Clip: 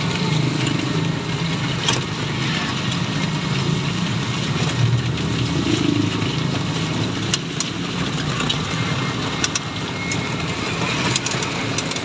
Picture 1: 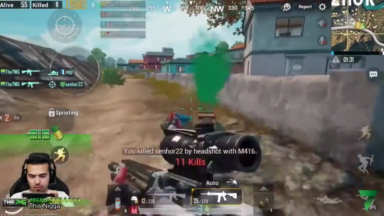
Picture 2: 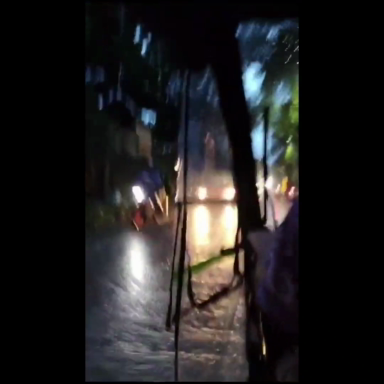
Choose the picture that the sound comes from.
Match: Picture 2